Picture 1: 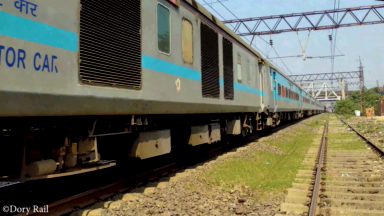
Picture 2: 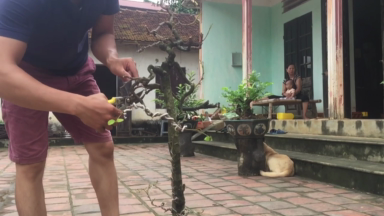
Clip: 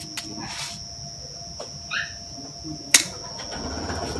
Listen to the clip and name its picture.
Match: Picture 2